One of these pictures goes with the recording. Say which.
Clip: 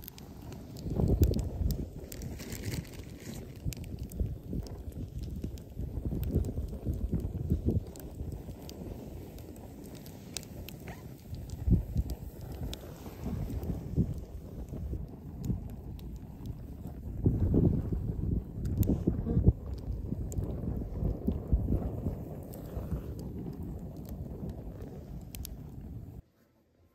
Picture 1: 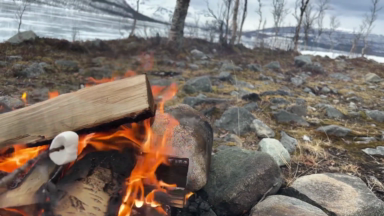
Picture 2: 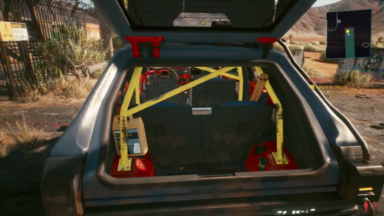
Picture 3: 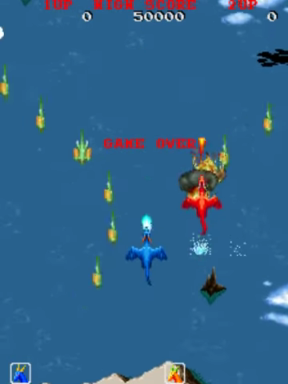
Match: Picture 1